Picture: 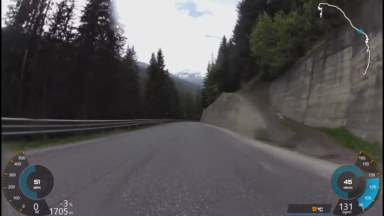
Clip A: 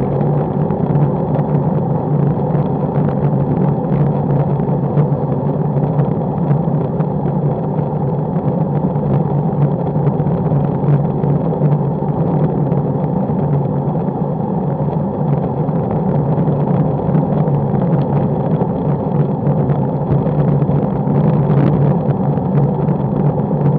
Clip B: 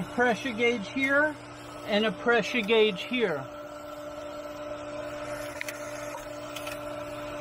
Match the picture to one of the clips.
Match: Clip A